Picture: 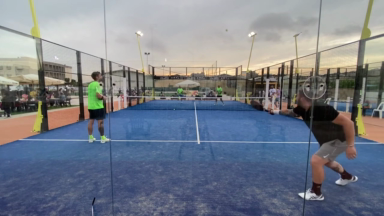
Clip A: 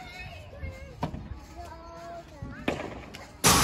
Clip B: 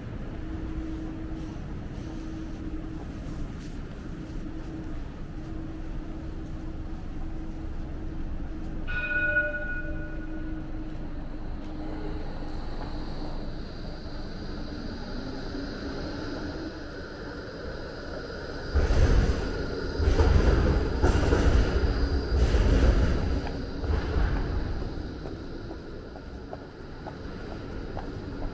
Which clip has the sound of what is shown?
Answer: A